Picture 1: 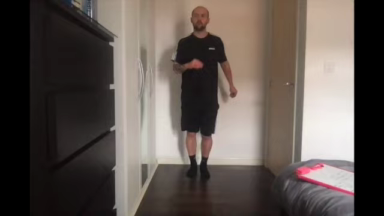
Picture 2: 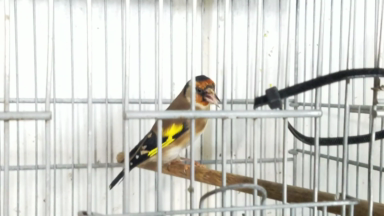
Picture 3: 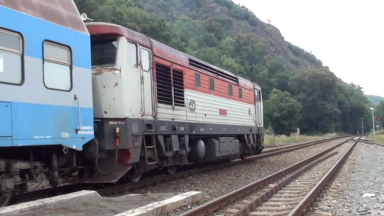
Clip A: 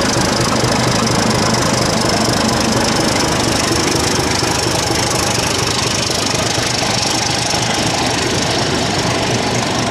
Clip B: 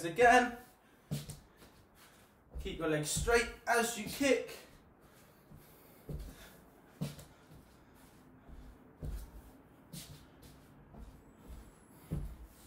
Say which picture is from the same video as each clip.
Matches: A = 3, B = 1